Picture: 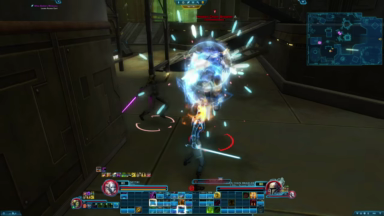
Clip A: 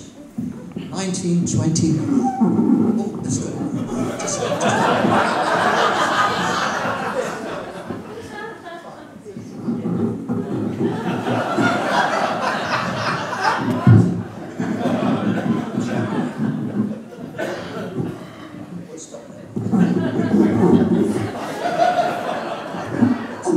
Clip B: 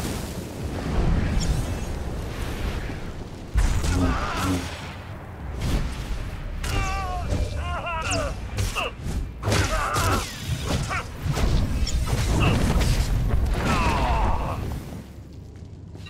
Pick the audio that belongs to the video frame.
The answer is B